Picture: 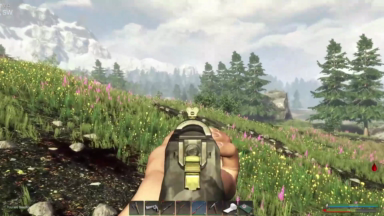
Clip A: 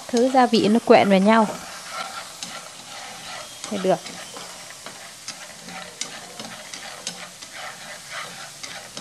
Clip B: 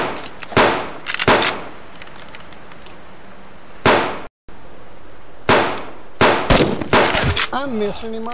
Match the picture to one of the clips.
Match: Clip B